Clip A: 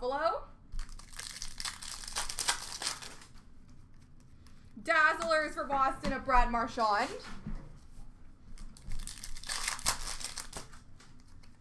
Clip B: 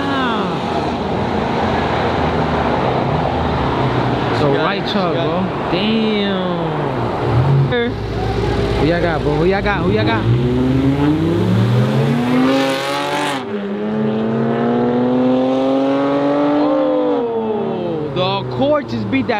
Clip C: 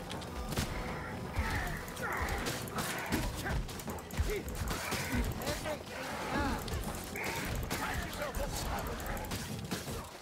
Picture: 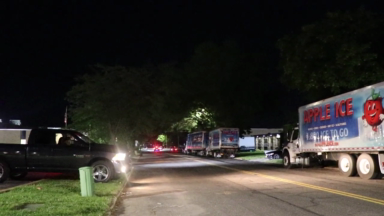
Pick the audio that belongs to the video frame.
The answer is B